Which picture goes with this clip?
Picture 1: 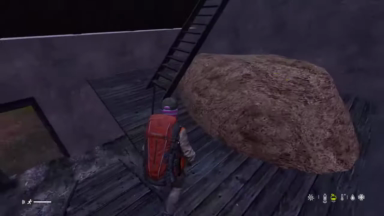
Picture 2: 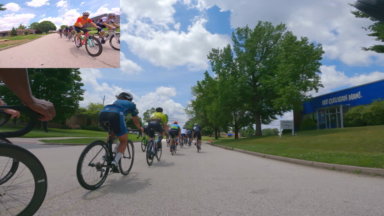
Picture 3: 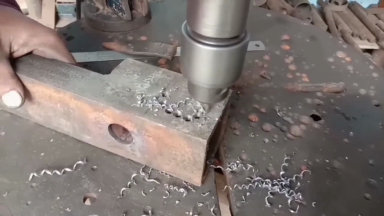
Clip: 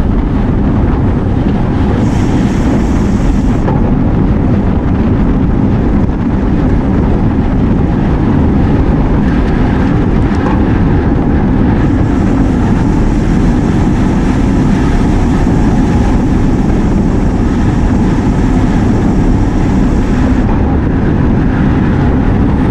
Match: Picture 2